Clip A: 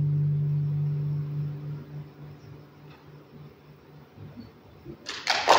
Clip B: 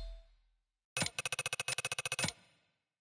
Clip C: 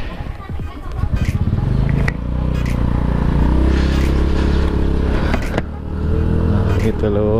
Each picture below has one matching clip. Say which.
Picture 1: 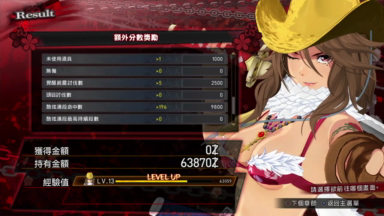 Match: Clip B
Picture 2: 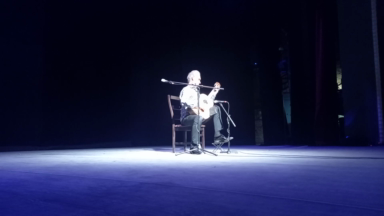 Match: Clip A